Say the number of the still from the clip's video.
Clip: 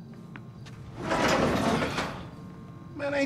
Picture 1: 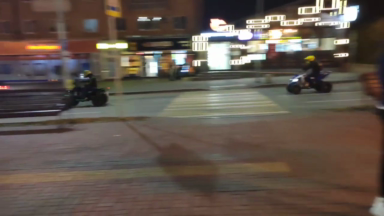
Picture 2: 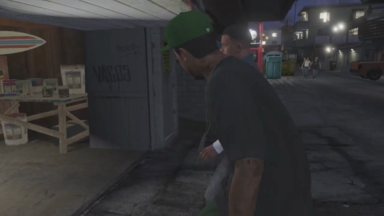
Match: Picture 2